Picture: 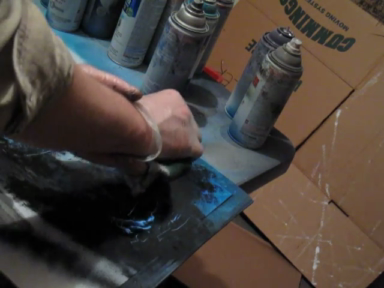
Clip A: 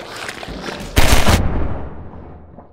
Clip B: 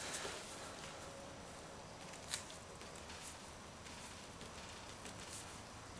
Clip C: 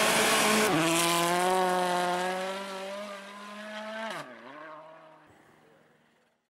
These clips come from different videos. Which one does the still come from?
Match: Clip B